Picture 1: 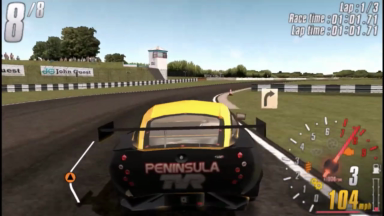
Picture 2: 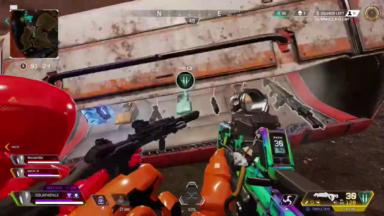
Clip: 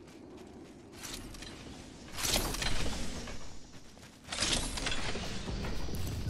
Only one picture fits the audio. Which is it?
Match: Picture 2